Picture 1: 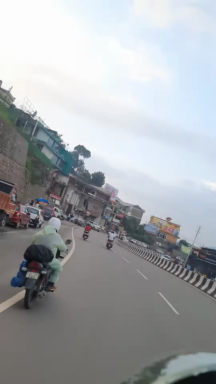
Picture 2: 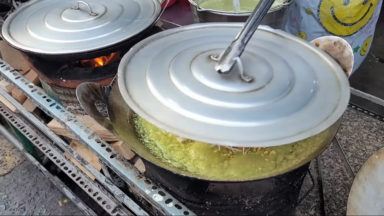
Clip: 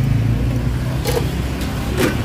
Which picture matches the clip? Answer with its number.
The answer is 2